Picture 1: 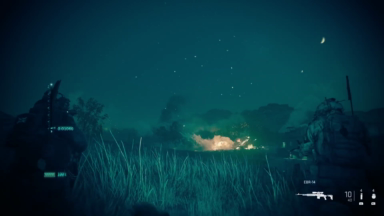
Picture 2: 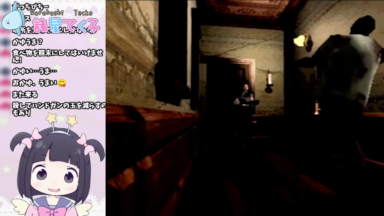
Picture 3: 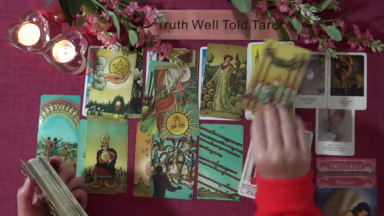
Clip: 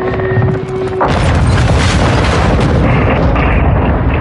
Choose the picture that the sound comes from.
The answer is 1